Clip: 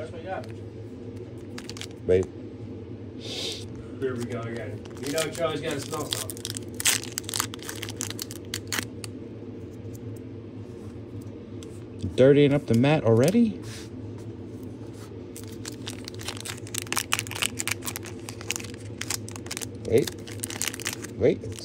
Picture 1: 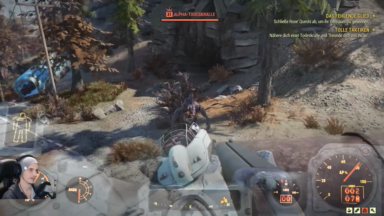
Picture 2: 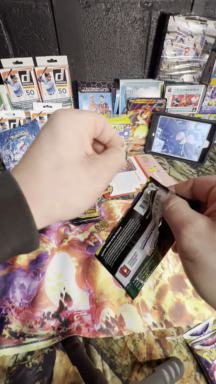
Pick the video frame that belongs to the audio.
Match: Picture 2